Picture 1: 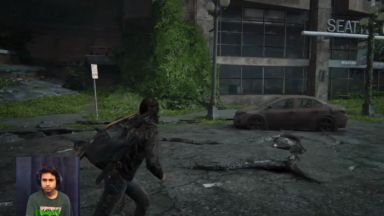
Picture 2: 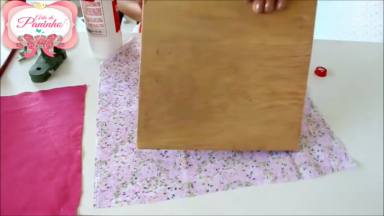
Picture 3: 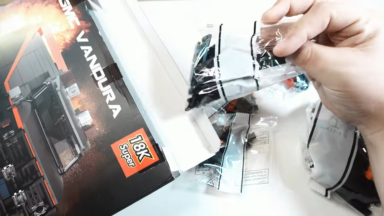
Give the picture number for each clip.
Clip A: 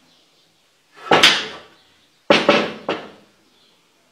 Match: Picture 2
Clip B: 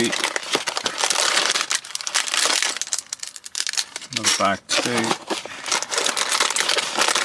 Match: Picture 3